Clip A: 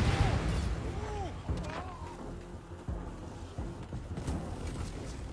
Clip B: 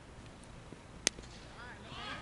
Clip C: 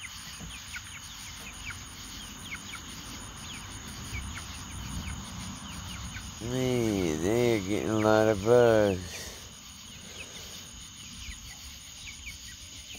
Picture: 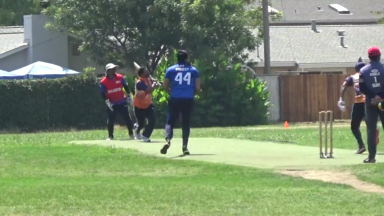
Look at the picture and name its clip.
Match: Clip B